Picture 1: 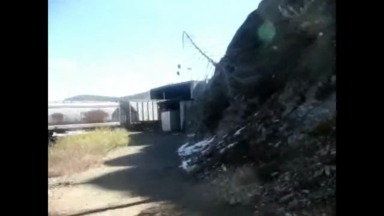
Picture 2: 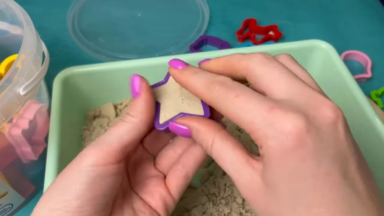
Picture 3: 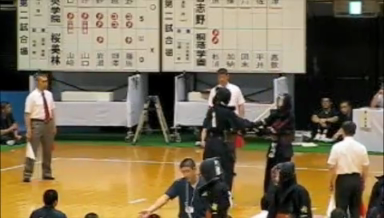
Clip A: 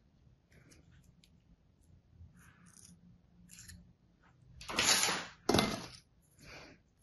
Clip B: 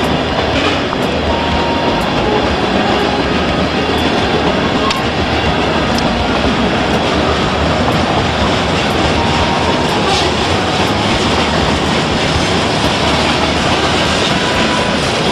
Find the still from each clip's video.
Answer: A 2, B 1